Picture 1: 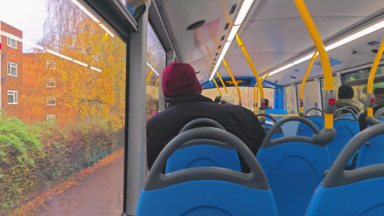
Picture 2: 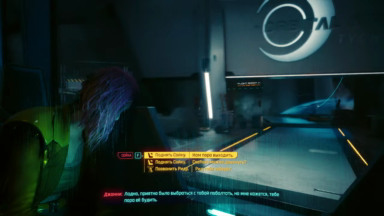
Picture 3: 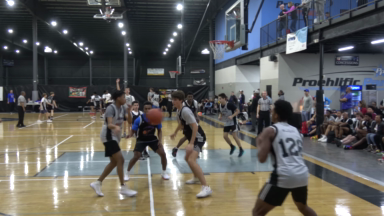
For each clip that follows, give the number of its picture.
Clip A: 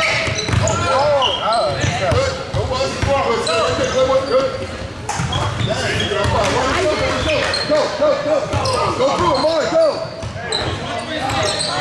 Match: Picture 3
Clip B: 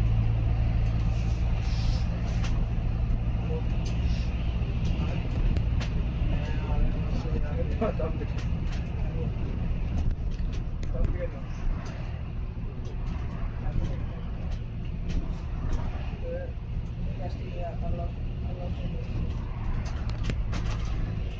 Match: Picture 1